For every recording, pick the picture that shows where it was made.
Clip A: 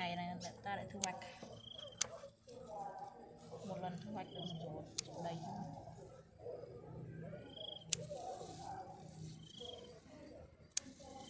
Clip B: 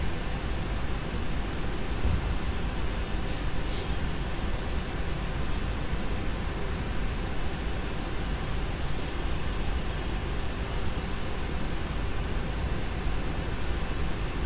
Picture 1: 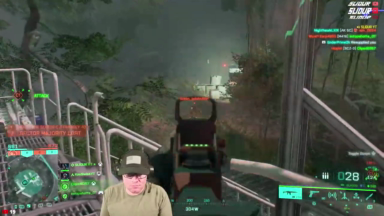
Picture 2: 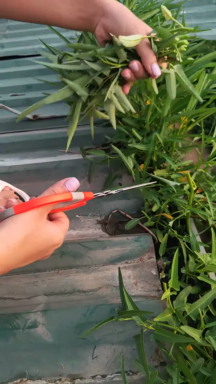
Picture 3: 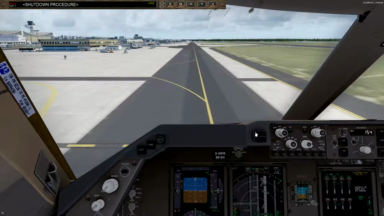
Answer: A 2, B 3